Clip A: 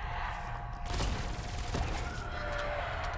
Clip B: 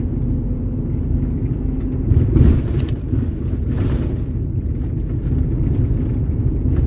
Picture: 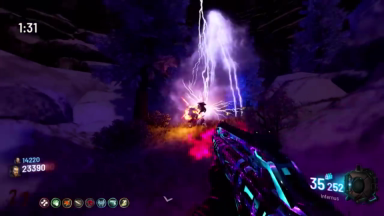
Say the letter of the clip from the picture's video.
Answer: A